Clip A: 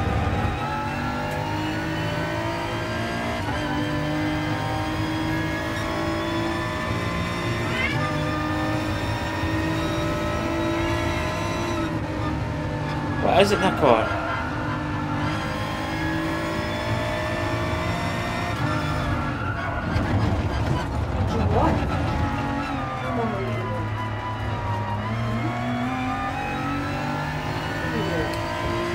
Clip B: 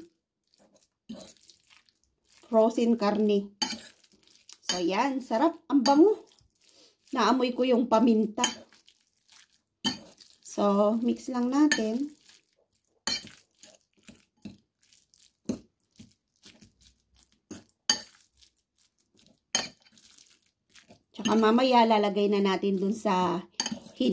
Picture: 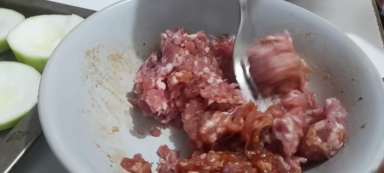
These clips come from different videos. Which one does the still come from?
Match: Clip B